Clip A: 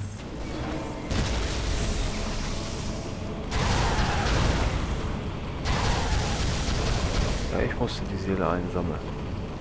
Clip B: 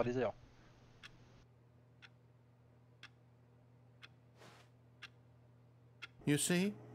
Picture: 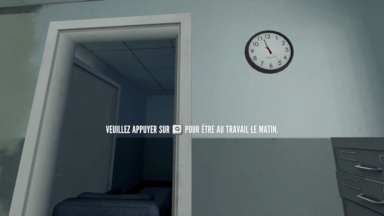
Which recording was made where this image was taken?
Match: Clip B